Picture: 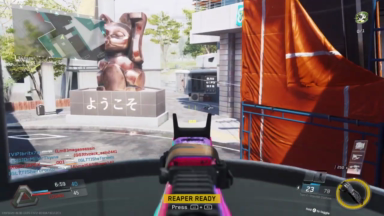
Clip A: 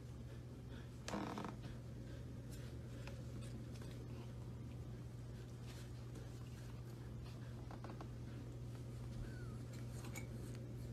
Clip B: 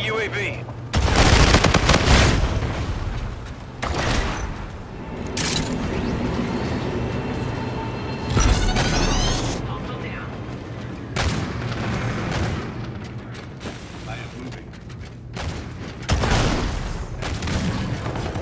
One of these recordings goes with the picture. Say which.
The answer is B